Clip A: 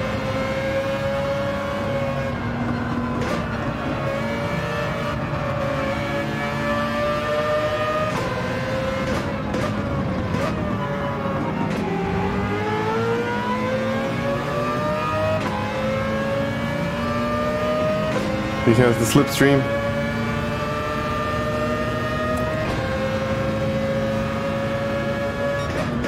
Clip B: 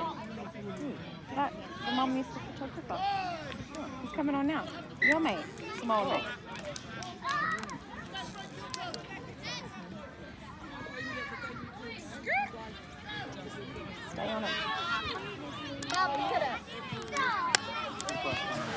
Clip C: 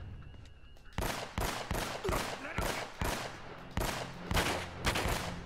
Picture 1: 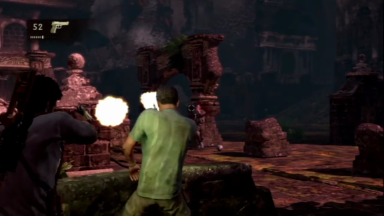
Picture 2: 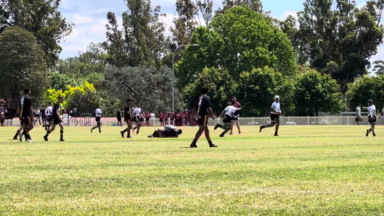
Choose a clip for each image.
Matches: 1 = C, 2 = B